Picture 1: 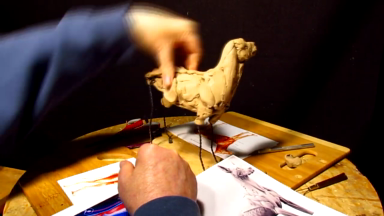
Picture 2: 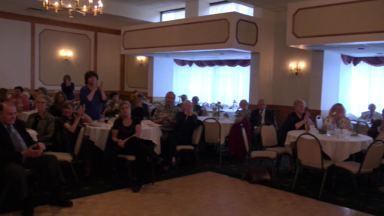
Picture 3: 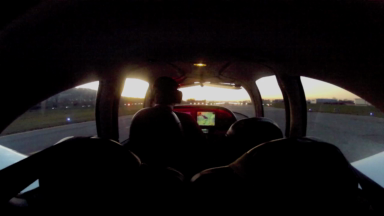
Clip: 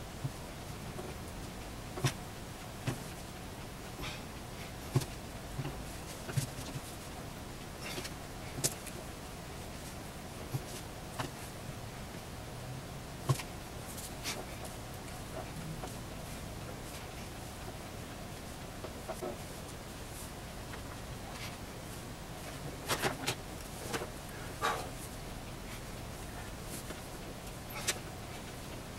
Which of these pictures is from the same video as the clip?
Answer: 1